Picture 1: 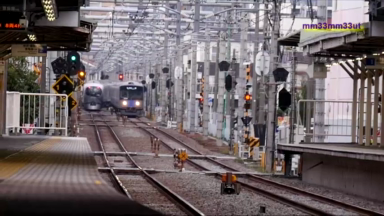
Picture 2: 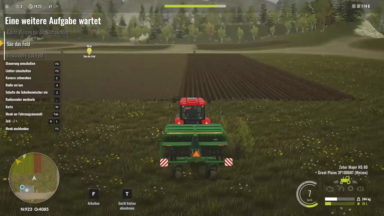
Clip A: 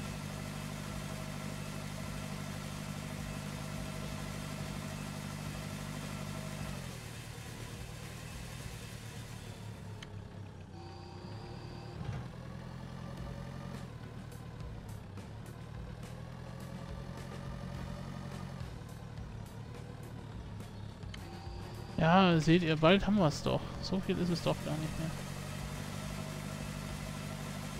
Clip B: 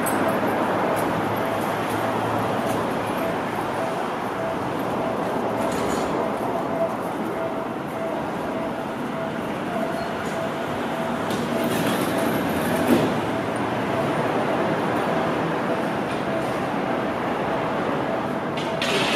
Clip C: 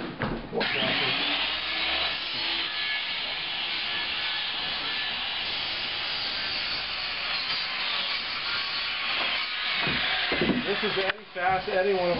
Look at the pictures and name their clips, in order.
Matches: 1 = B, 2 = A